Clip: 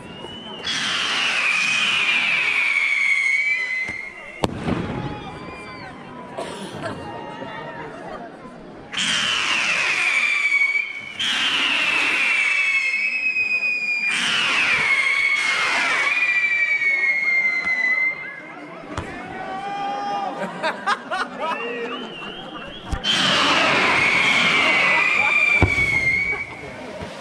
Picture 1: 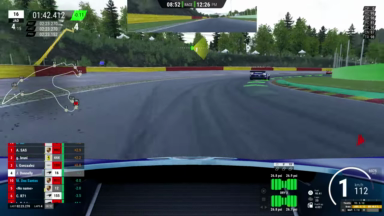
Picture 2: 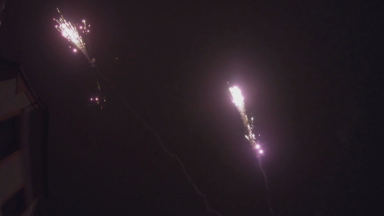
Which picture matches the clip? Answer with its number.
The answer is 2